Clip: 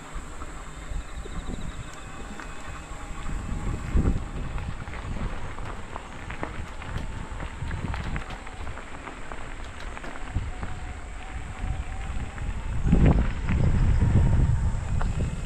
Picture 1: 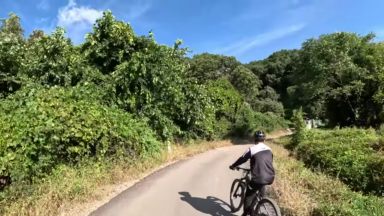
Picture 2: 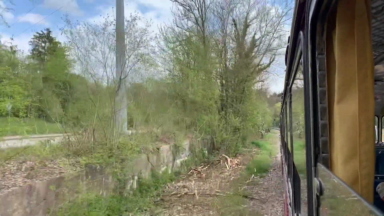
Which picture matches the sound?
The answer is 1